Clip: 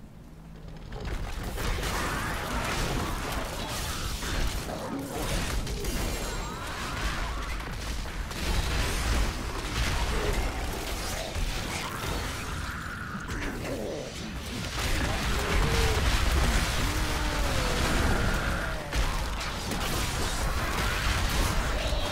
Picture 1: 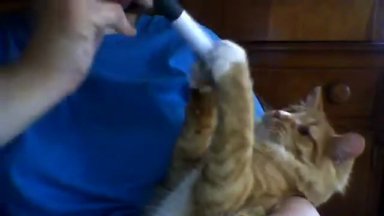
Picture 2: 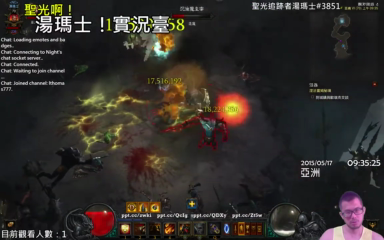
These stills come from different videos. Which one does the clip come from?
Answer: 2